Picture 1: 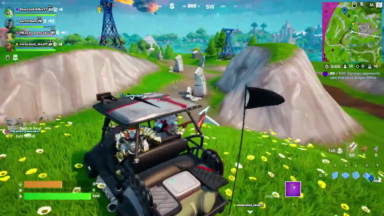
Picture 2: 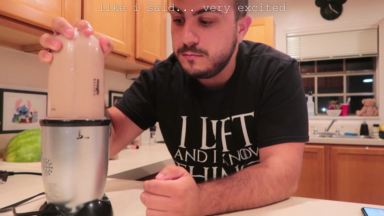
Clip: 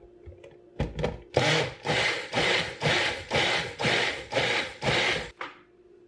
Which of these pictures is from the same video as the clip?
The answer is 2